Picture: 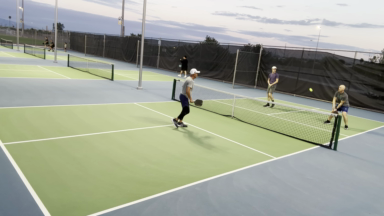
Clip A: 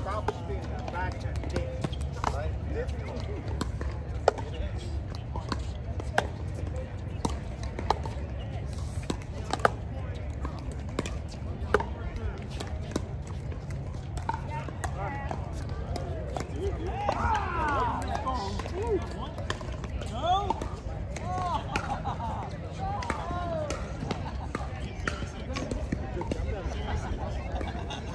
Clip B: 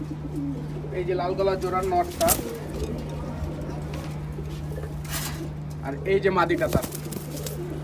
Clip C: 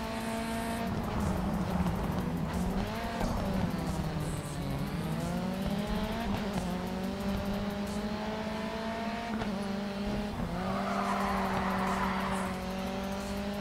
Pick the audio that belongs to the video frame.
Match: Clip A